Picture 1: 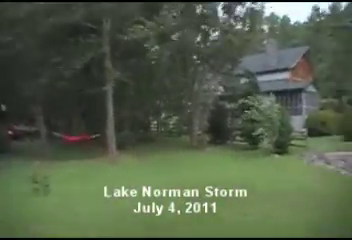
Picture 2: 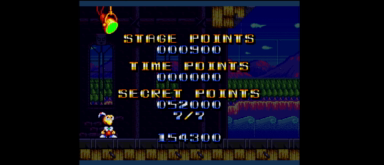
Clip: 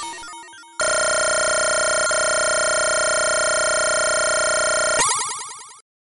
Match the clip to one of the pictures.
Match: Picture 2